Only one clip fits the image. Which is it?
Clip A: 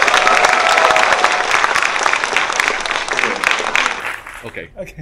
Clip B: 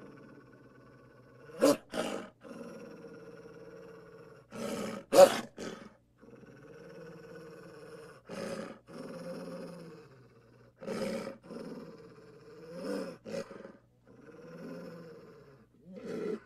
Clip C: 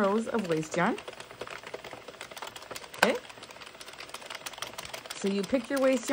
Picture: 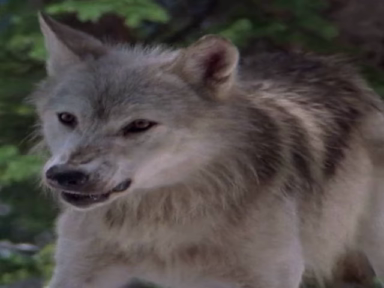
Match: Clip B